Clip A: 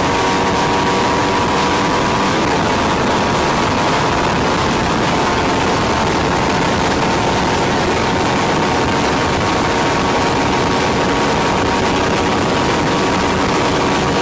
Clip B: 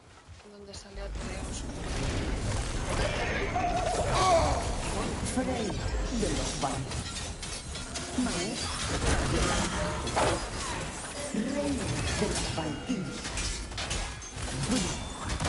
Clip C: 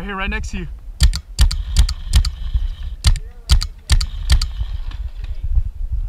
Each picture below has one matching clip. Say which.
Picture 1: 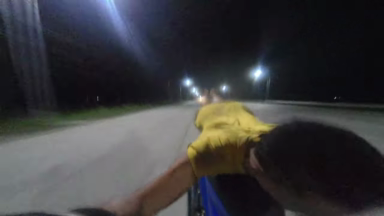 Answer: A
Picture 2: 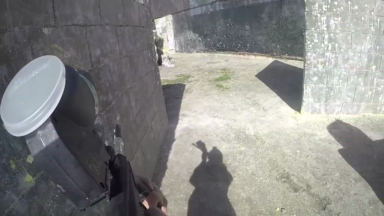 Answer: C